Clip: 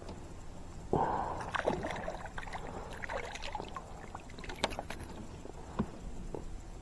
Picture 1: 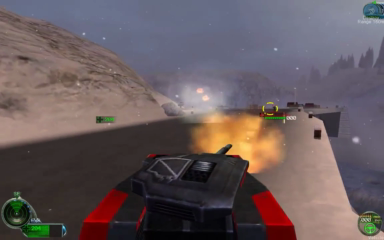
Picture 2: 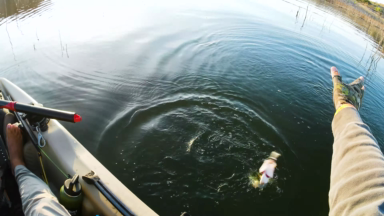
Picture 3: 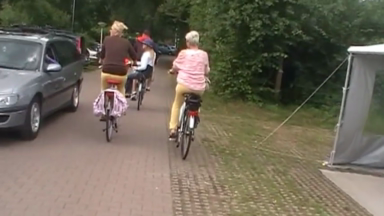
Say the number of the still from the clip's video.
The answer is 2